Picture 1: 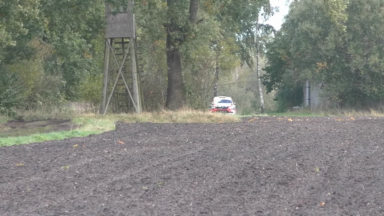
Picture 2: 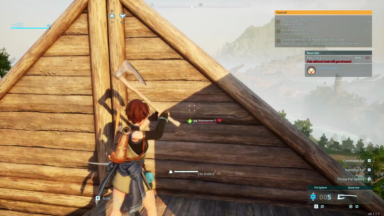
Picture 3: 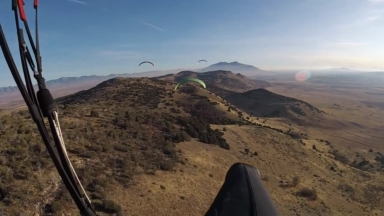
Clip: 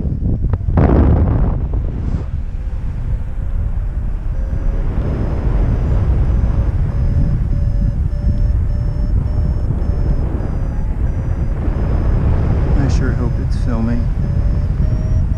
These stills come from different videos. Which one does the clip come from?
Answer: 3